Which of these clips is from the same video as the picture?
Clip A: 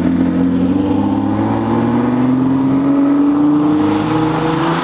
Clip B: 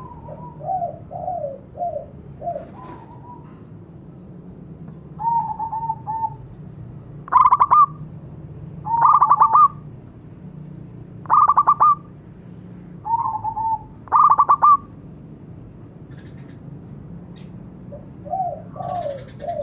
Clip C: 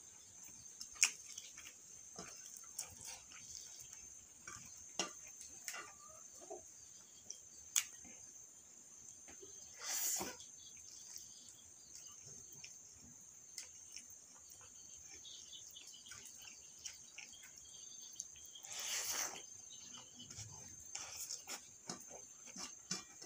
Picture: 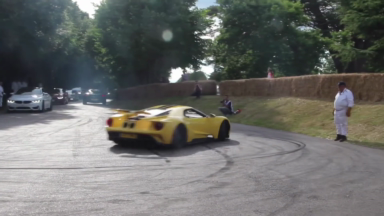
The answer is A